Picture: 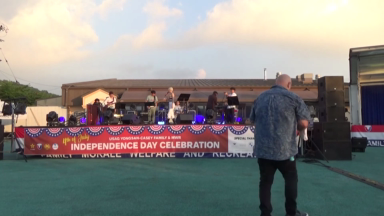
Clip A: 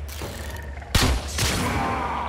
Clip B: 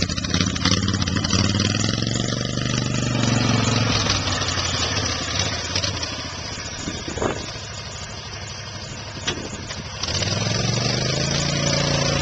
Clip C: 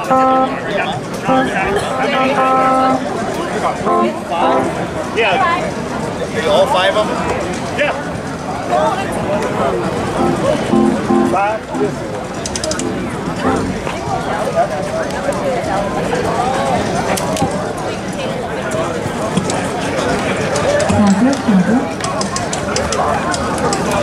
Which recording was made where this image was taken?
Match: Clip C